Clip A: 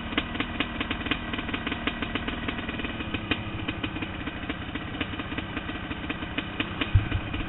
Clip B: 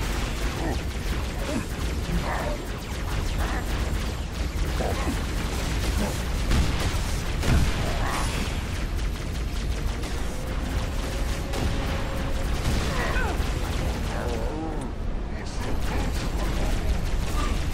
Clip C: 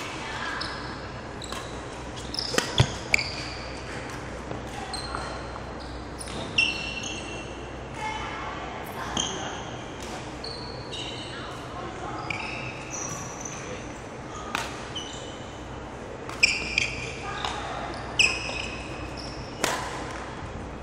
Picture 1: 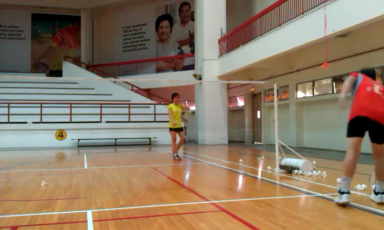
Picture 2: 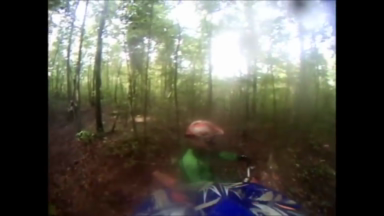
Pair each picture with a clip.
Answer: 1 C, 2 A